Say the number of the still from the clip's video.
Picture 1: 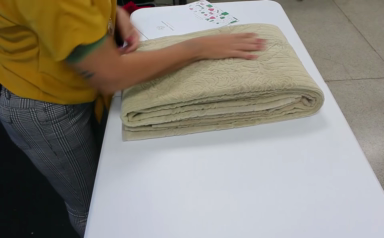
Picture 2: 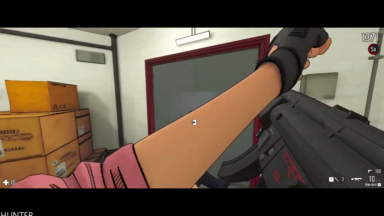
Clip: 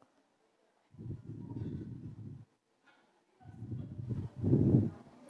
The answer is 1